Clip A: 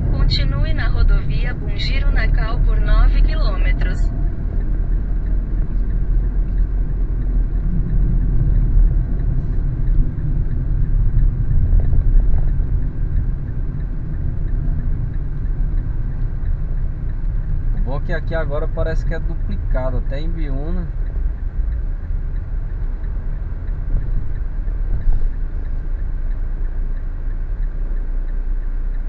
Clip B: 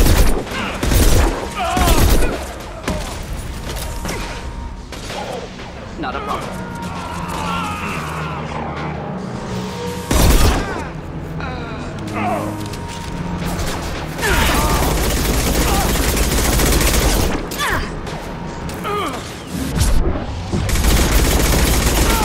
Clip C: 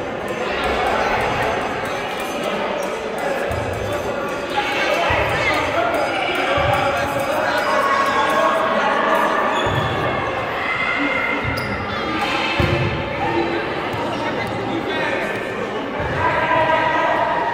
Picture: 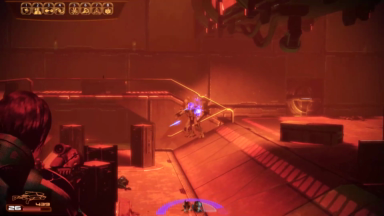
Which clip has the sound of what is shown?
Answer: B